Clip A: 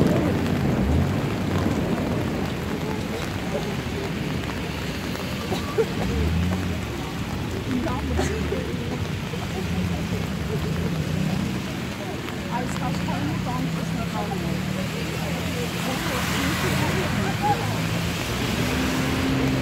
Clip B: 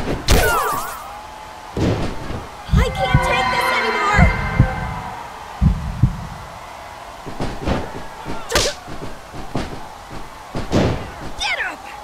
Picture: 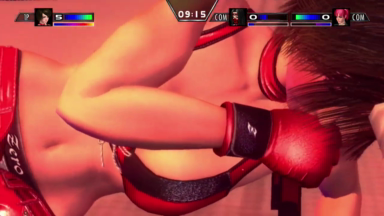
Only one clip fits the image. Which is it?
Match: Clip B